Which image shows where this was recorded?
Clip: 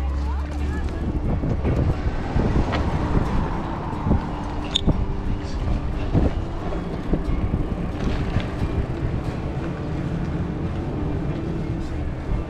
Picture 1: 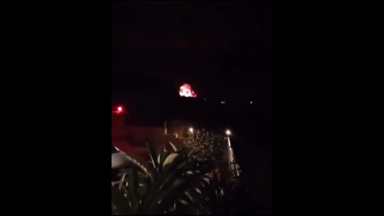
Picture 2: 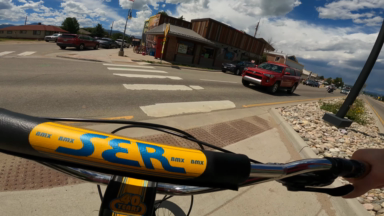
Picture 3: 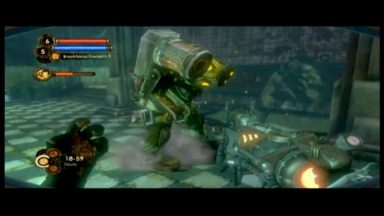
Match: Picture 2